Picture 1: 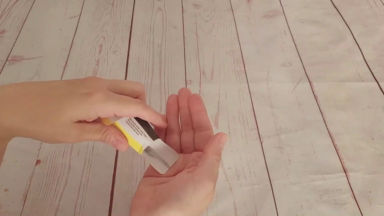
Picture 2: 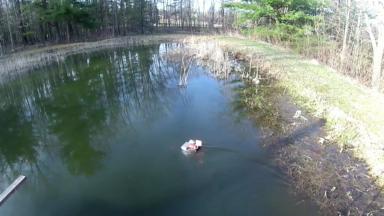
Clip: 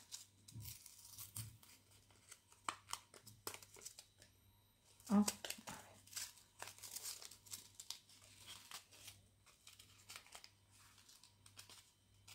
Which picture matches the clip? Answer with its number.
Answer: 1